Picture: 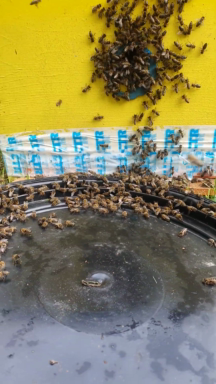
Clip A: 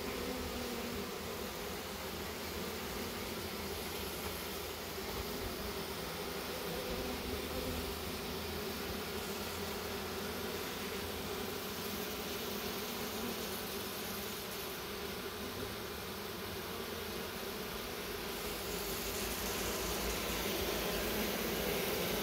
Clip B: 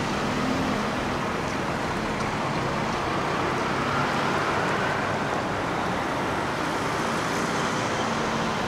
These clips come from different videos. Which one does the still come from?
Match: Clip A